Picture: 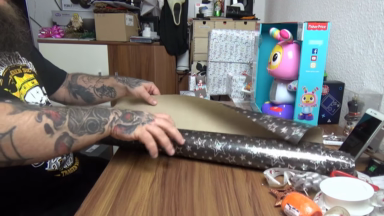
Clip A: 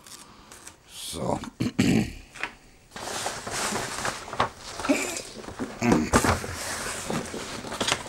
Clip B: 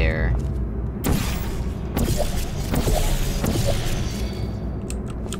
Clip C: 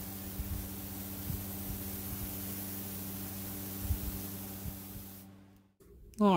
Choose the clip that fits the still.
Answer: A